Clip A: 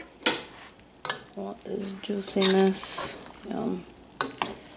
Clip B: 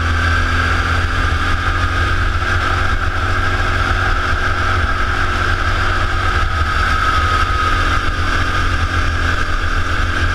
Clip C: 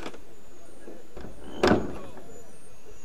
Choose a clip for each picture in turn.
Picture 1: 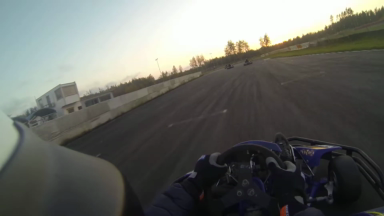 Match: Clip B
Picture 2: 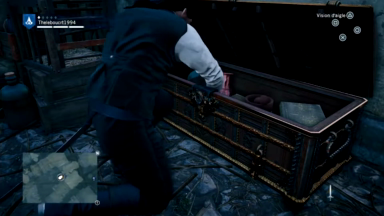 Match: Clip C